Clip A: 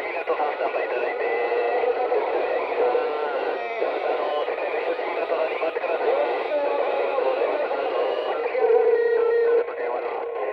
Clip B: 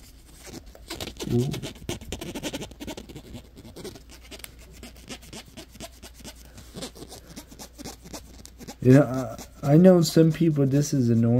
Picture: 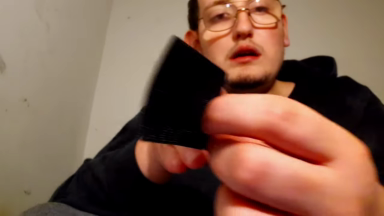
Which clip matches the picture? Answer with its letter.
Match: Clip B